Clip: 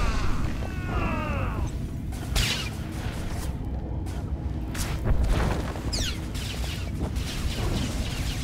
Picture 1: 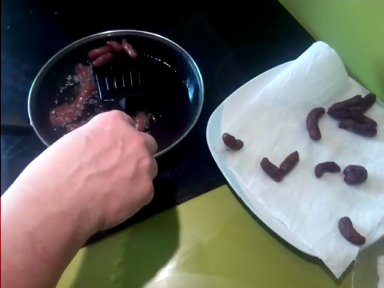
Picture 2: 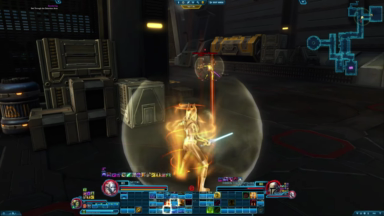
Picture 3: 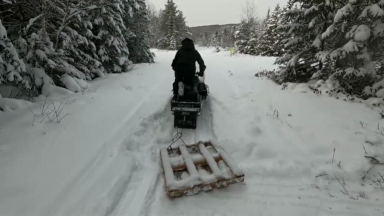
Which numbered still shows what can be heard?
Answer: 2